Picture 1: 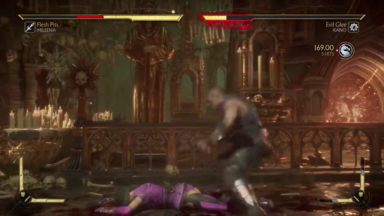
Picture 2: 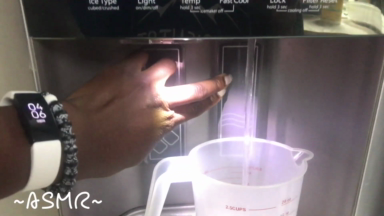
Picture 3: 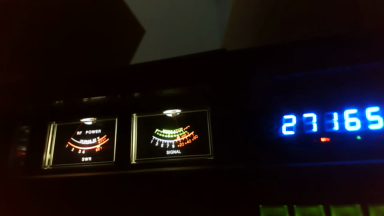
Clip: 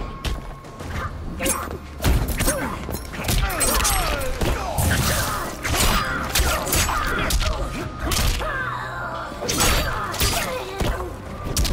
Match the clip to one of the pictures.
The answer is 1